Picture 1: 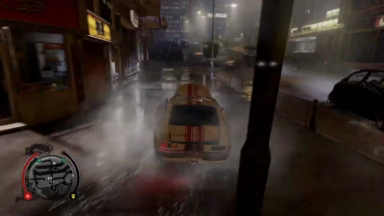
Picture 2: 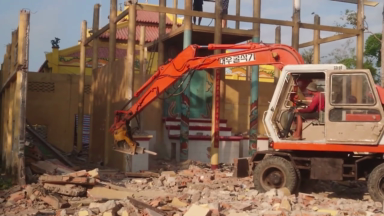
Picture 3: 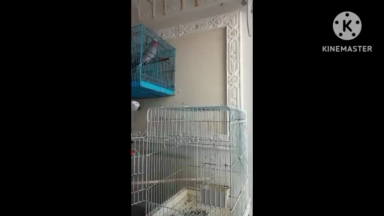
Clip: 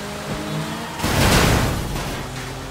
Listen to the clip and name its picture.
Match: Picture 1